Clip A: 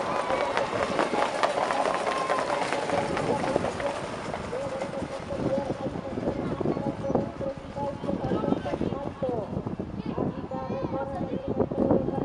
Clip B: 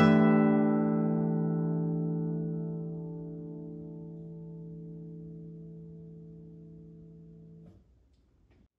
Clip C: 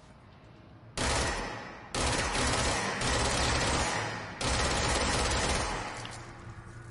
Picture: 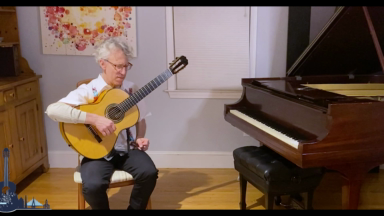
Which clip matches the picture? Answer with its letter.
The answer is B